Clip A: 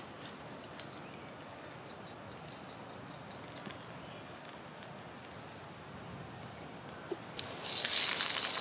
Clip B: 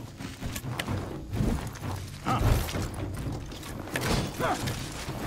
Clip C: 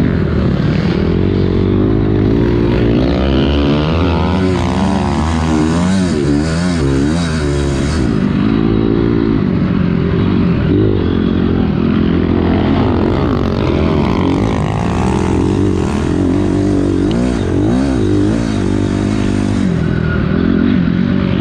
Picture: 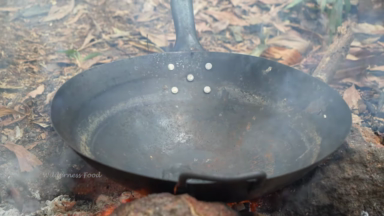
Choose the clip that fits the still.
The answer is A